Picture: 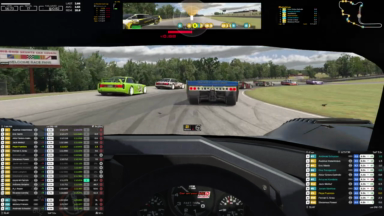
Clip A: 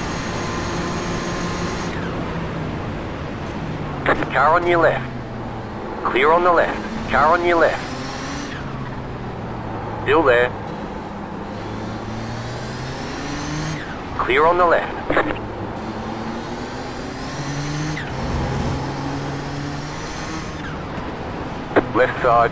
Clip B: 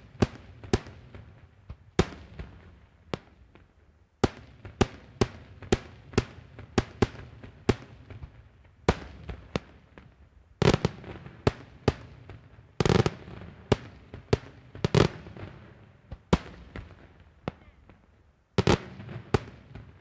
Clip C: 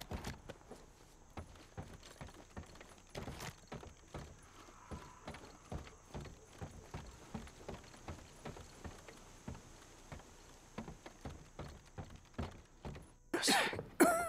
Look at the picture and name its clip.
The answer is A